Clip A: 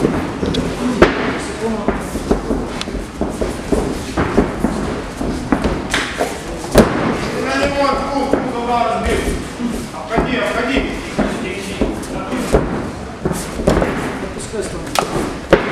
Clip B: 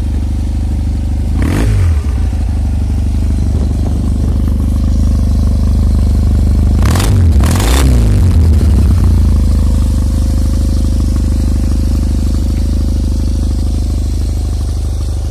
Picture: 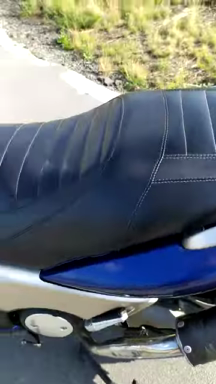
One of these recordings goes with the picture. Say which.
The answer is B